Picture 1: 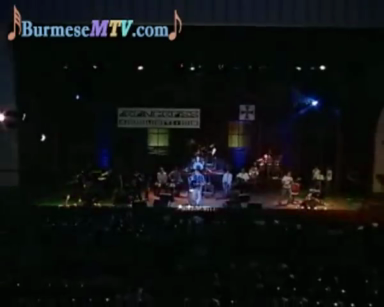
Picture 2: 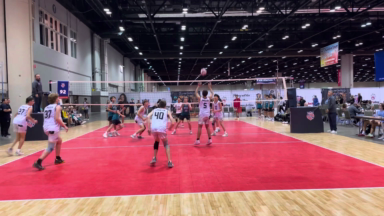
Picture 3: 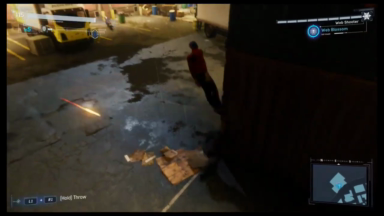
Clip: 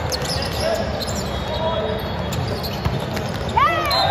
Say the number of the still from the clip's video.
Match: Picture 2